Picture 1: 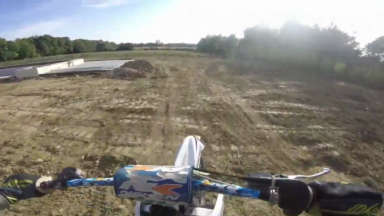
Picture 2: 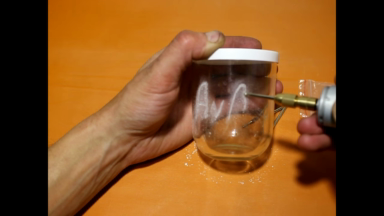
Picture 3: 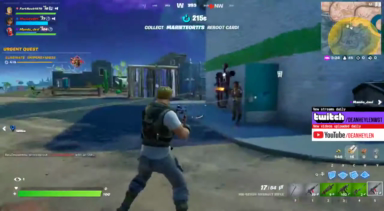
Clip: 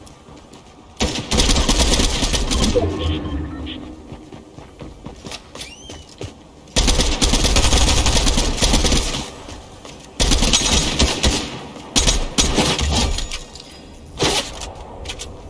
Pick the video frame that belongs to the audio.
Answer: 3